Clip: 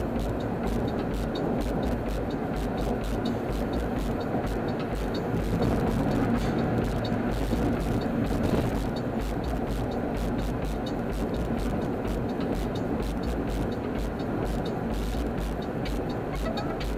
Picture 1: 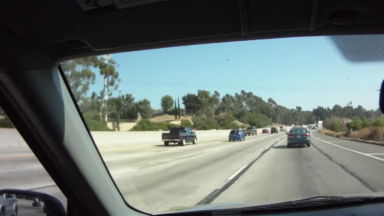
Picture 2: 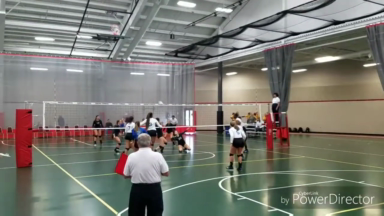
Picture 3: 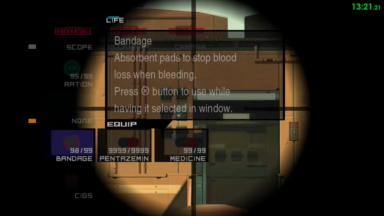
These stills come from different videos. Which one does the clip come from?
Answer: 1